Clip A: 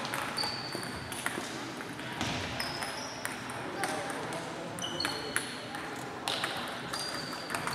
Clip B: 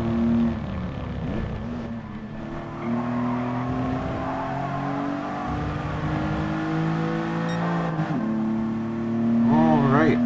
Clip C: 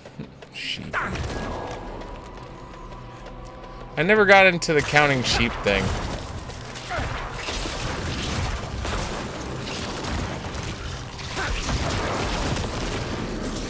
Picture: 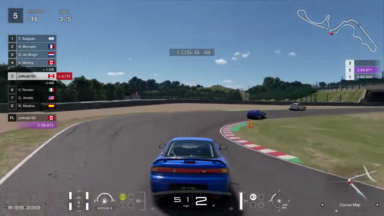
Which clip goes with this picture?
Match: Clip B